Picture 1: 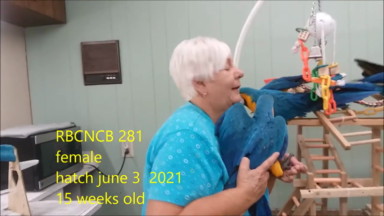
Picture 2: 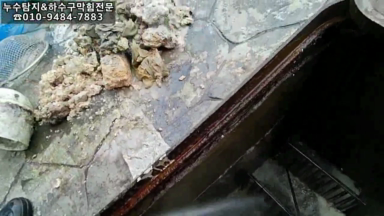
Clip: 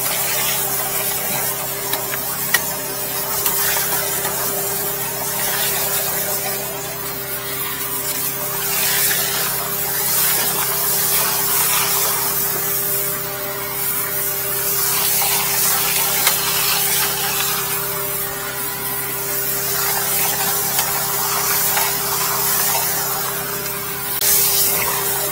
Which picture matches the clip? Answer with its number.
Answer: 2